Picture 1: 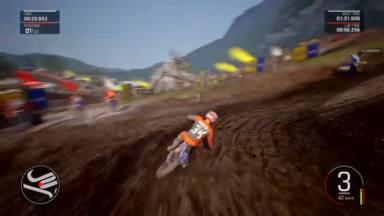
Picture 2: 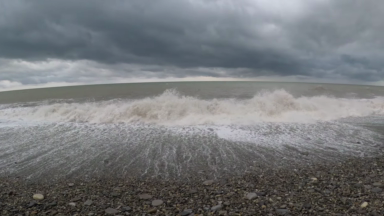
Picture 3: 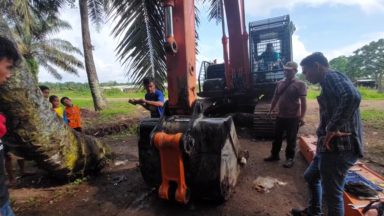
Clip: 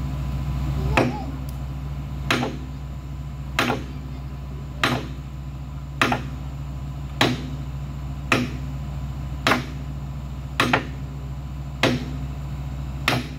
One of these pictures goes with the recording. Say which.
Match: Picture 3